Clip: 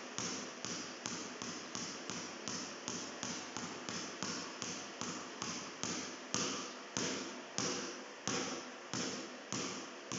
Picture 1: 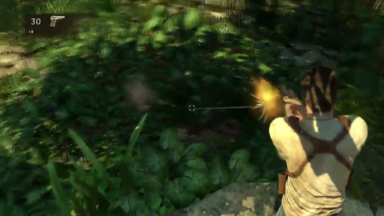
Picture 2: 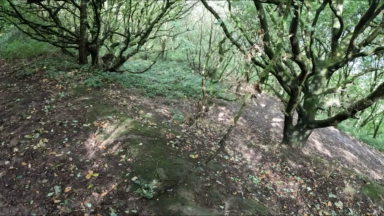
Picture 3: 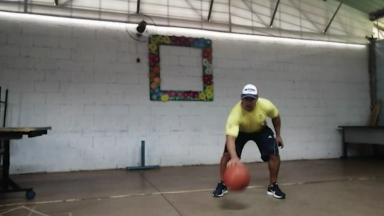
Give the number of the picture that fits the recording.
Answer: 3